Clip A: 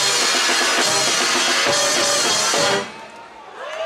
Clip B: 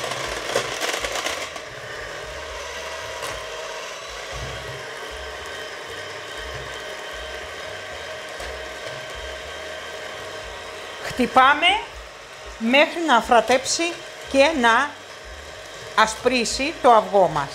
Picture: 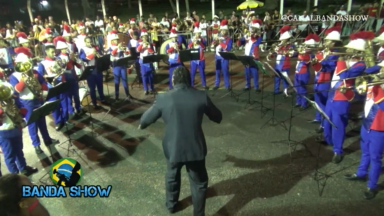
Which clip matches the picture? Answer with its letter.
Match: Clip A